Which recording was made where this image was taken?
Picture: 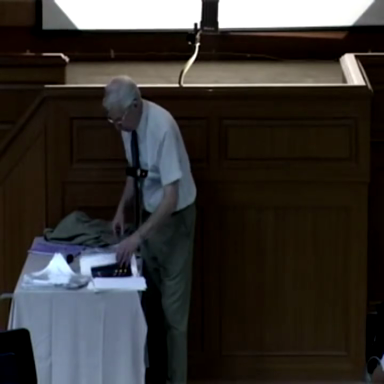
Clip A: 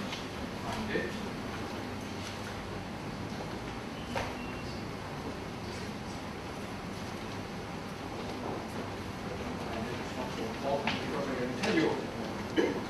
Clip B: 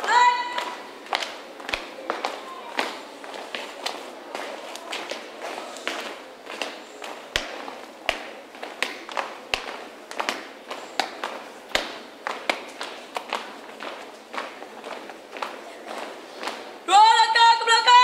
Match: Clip A